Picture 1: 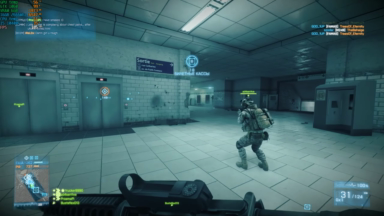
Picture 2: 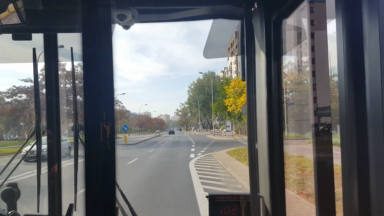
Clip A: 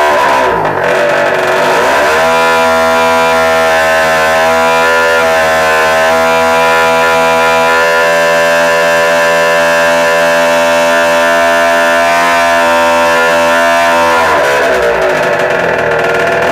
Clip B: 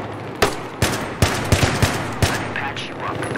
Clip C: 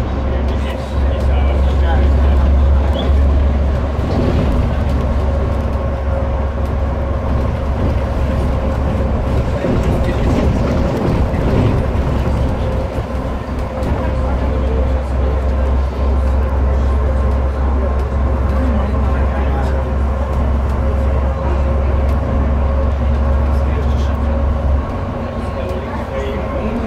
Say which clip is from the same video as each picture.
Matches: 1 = B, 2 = C